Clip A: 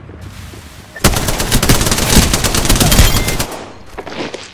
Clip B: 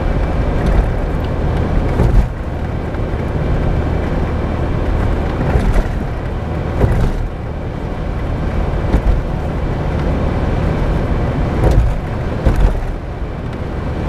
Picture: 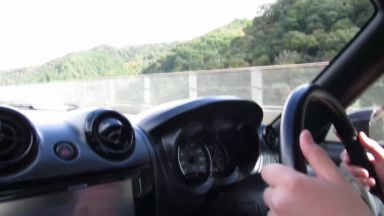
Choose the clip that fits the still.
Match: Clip B